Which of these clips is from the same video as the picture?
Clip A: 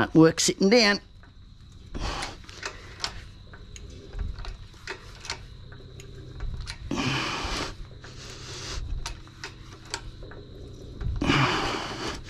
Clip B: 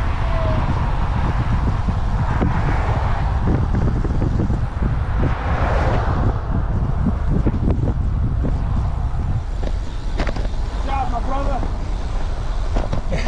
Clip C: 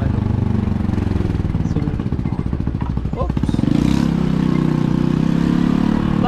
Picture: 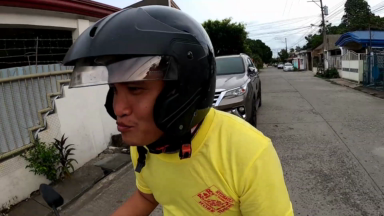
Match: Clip C